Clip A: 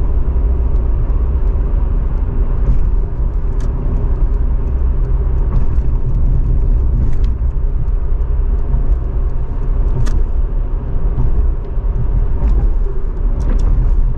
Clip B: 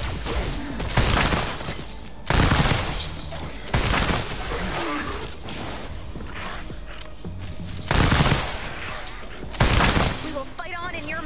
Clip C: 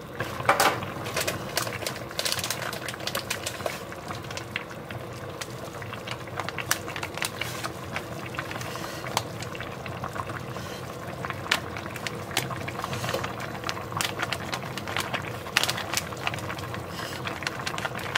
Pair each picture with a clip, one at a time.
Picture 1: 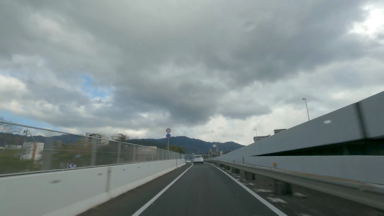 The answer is A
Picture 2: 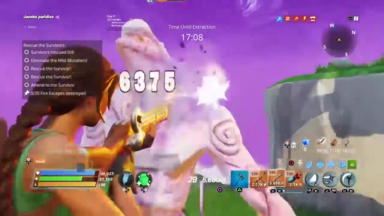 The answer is B